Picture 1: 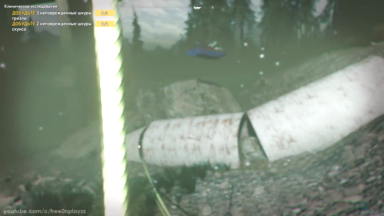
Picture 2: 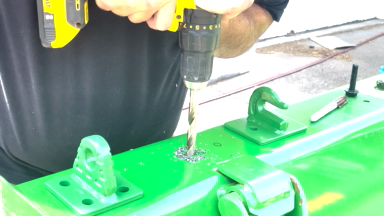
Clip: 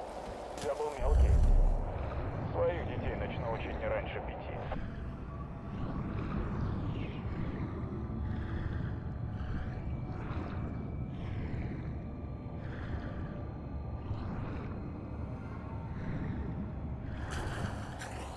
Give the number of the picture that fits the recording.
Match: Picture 1